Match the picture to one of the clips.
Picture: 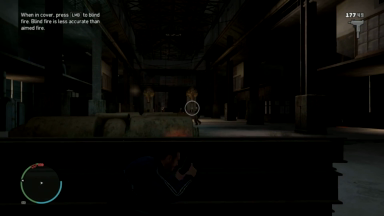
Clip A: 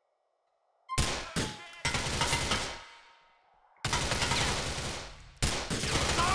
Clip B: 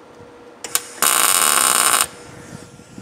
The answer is A